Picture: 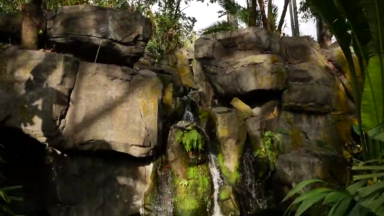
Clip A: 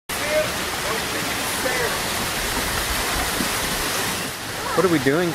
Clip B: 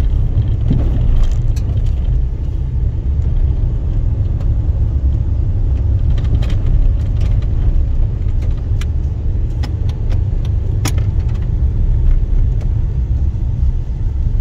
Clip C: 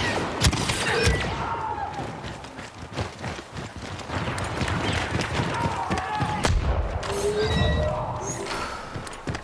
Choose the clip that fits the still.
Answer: A